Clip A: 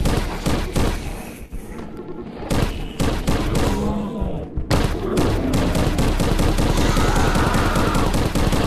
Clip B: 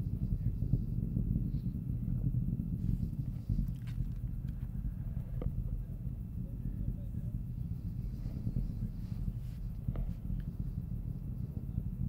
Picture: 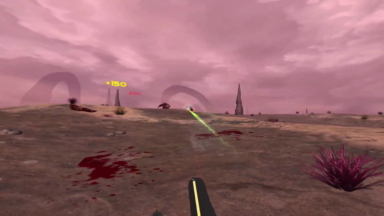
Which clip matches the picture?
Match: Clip A